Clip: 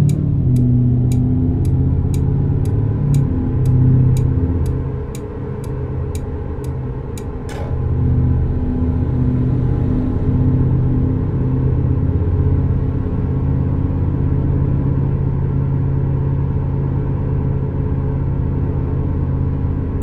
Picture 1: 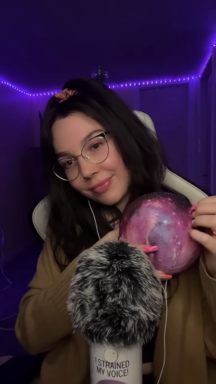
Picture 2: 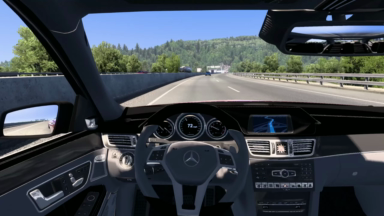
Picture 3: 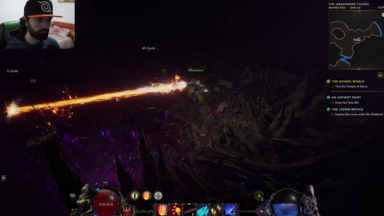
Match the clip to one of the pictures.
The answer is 2